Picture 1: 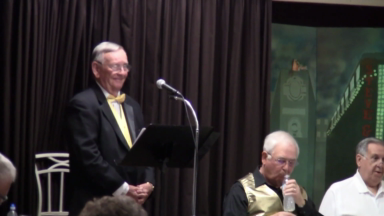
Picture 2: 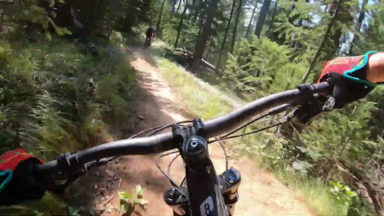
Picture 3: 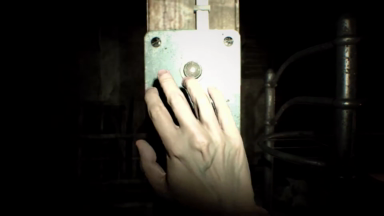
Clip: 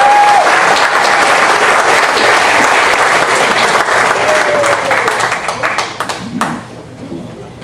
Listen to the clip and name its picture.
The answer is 1